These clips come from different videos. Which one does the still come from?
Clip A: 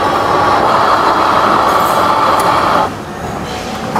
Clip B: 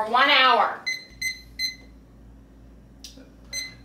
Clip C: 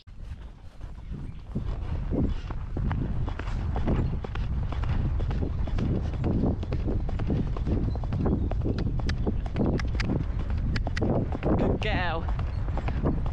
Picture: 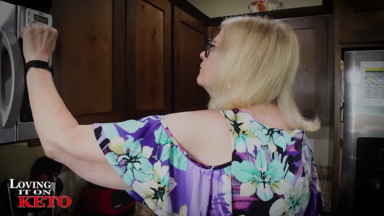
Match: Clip B